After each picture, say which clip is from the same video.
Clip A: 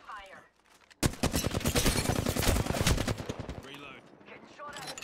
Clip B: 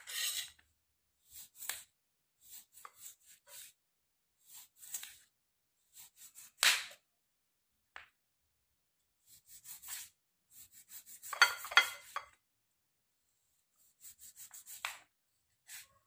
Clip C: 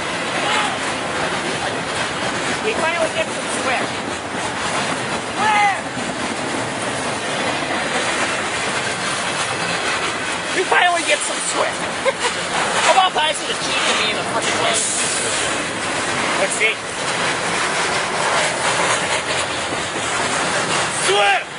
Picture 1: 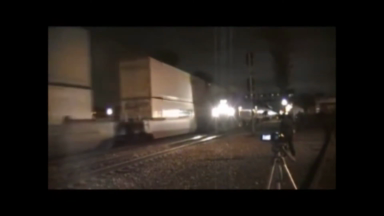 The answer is C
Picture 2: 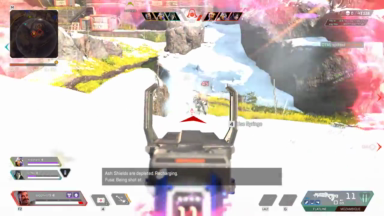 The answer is A